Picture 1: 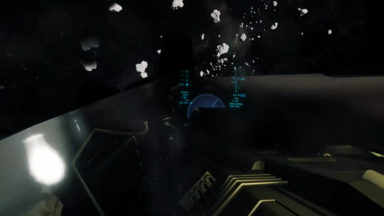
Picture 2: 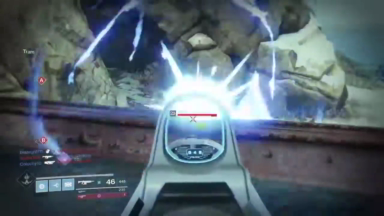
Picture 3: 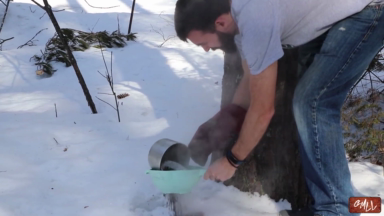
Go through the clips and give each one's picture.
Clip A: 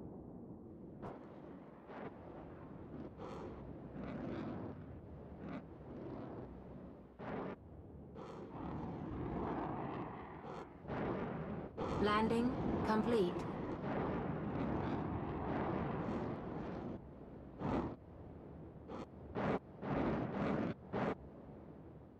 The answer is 1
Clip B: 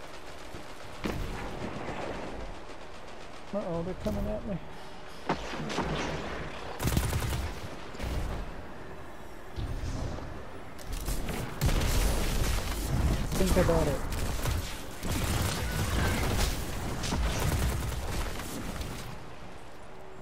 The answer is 2